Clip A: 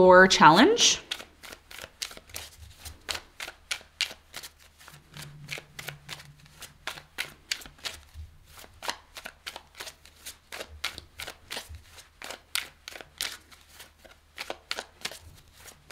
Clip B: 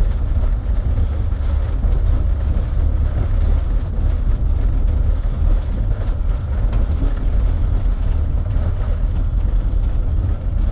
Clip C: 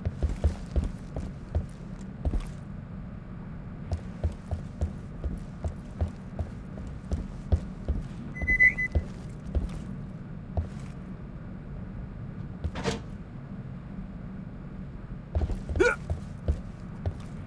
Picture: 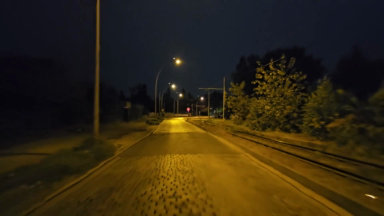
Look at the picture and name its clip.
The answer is B